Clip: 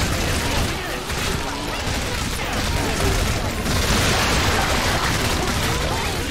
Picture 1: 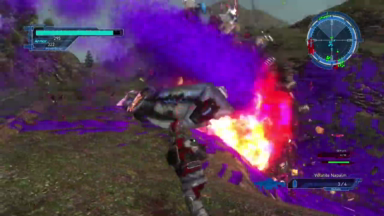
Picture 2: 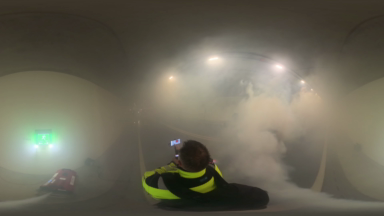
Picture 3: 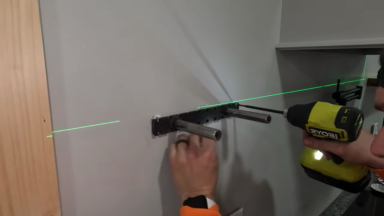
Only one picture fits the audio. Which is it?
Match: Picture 1